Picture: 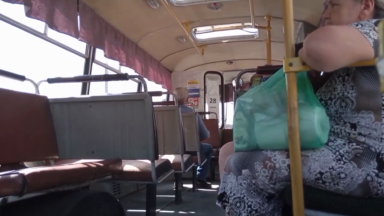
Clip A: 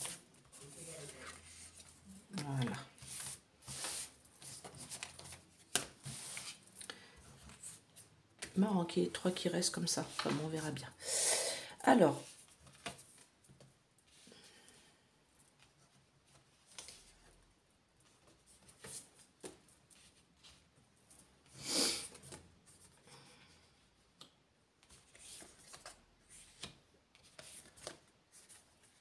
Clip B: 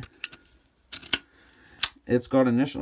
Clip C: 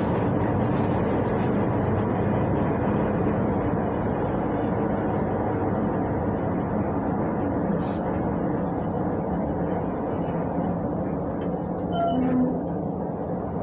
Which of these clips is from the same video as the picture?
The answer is C